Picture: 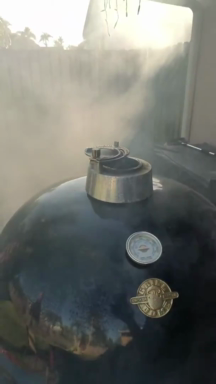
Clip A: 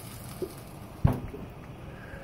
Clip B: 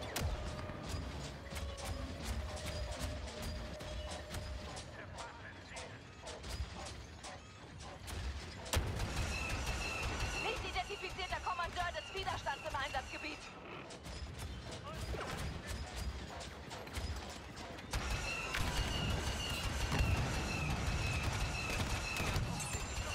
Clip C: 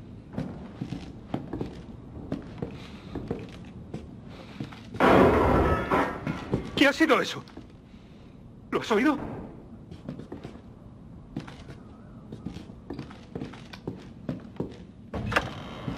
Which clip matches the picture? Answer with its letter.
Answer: A